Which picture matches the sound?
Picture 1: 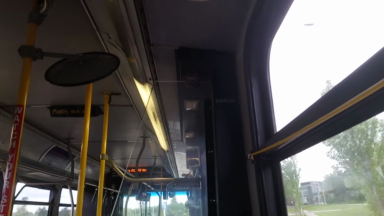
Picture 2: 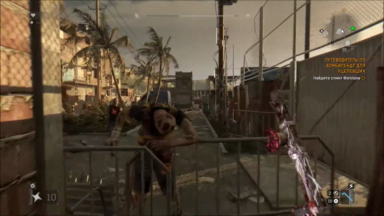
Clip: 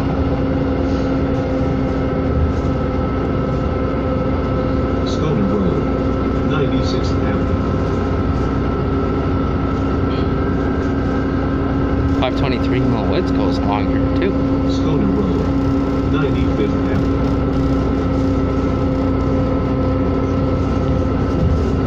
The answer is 1